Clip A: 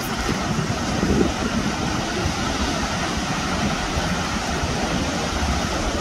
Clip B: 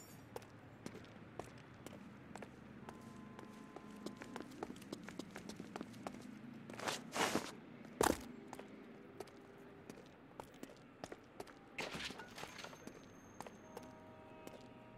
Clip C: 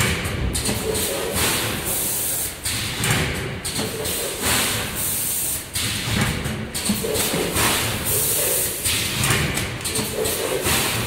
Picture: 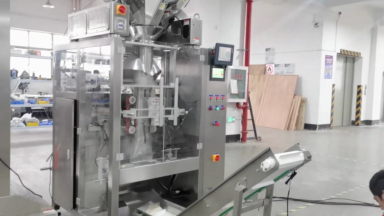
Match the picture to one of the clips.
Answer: C